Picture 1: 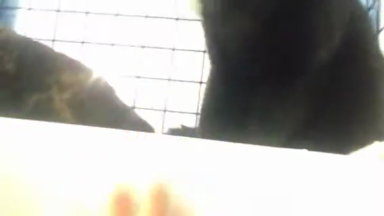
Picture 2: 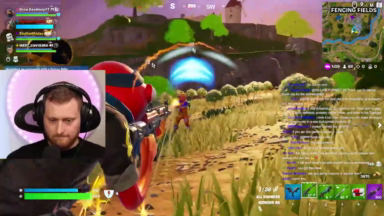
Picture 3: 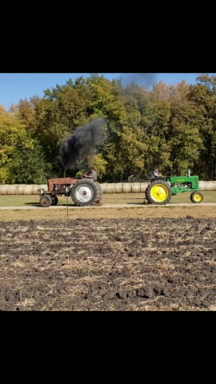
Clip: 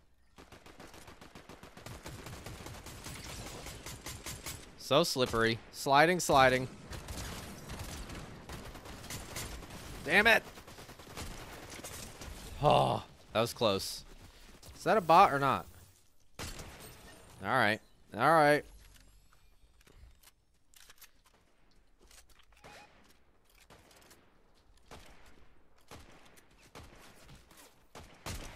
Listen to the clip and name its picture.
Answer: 2